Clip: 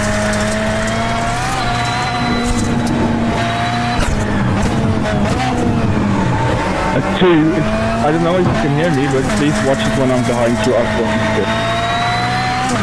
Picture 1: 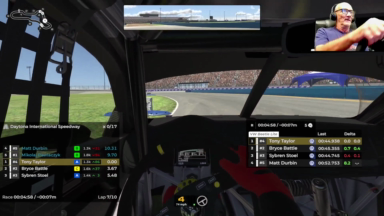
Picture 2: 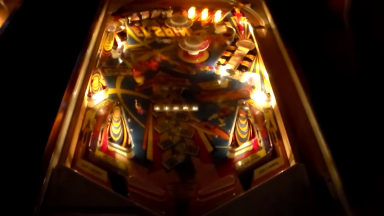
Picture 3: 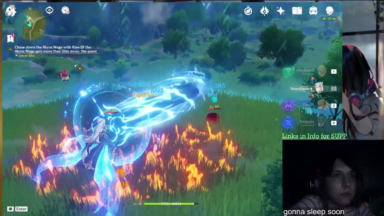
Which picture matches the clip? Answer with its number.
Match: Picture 1